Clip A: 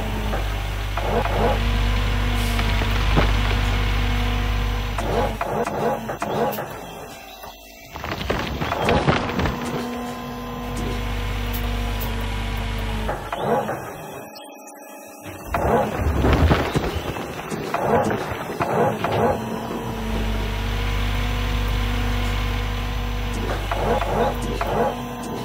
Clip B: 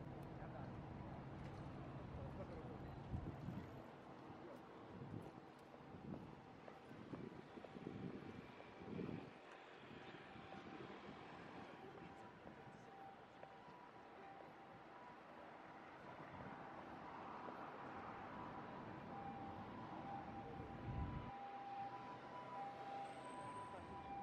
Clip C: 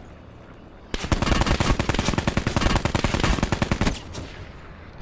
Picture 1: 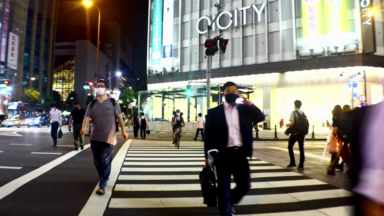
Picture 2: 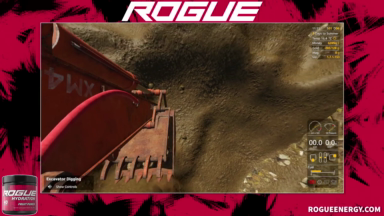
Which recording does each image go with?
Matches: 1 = B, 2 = A